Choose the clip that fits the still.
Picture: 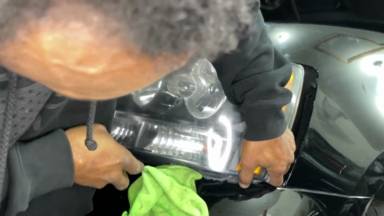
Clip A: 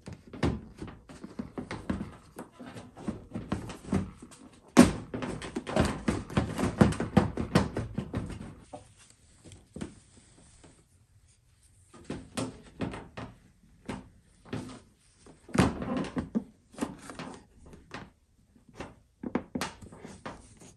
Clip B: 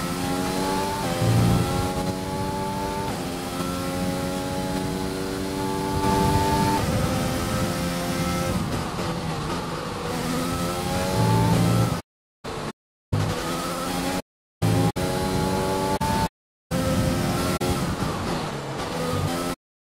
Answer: A